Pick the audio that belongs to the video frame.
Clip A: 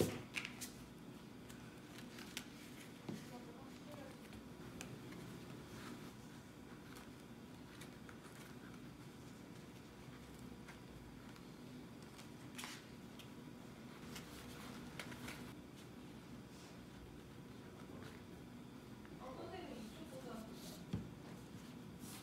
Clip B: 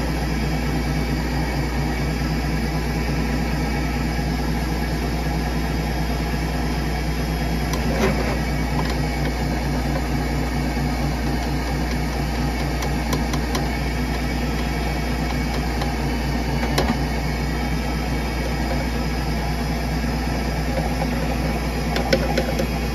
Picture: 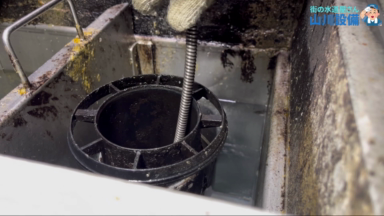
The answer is B